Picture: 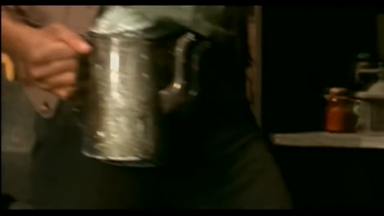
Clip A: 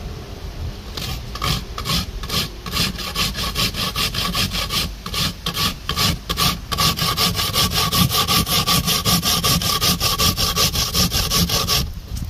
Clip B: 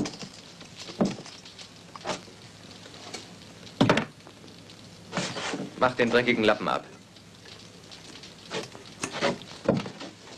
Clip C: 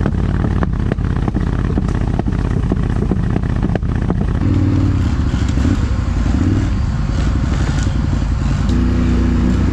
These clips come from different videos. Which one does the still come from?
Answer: B